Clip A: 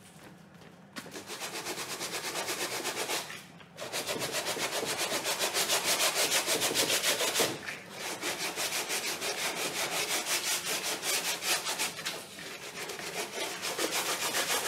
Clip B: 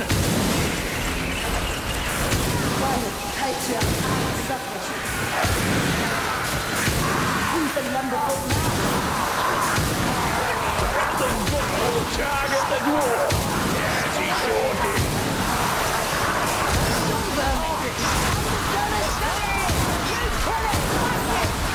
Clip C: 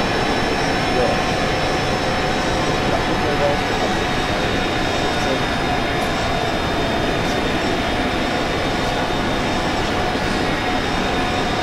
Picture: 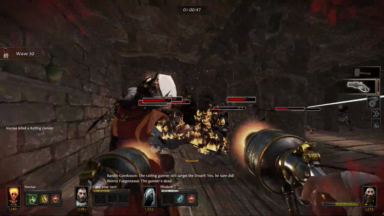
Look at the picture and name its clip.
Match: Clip B